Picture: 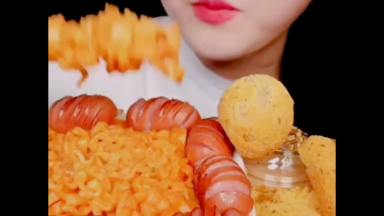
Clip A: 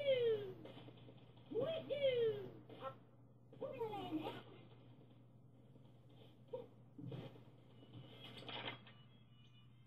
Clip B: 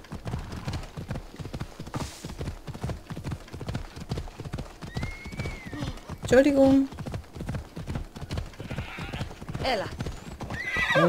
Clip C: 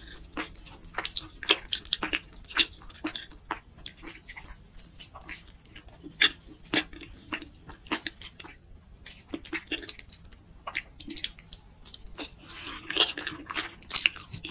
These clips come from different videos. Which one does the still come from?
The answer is C